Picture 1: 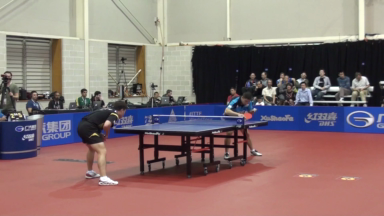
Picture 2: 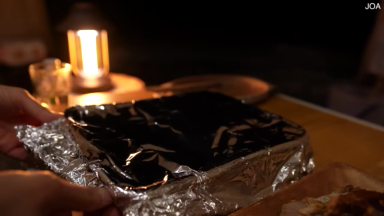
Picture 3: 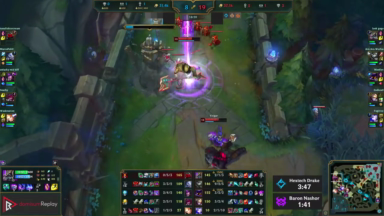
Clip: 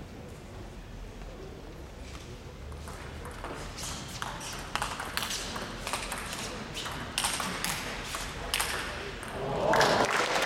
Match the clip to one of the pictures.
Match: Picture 1